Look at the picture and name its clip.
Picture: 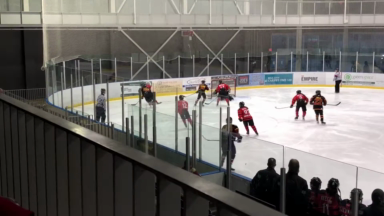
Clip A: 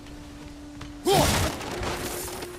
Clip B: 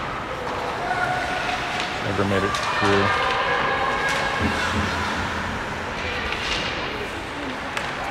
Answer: B